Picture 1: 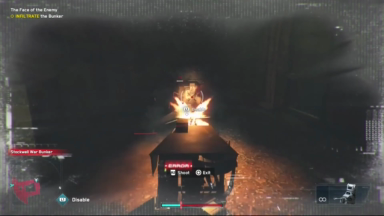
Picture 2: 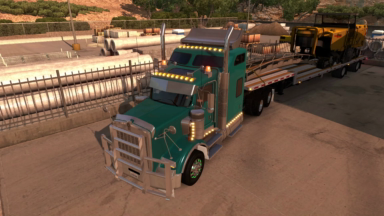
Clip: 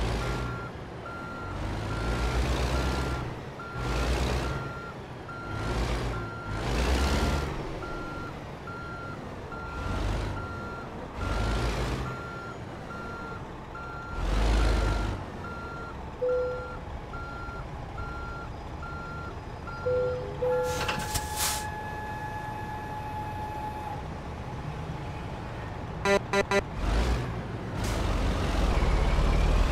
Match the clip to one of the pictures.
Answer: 2